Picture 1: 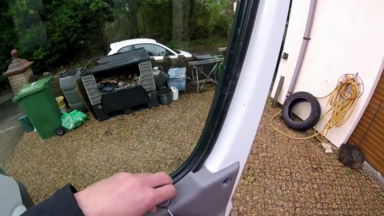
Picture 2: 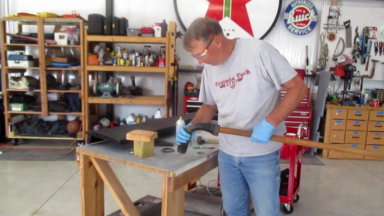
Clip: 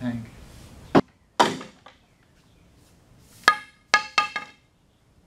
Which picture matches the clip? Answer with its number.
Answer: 2